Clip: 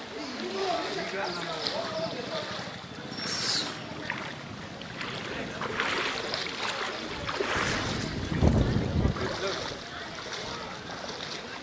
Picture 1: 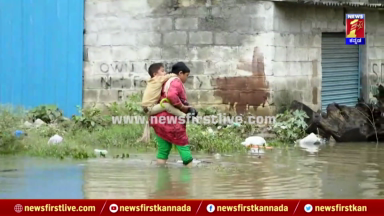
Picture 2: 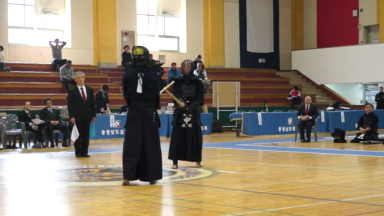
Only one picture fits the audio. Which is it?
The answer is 1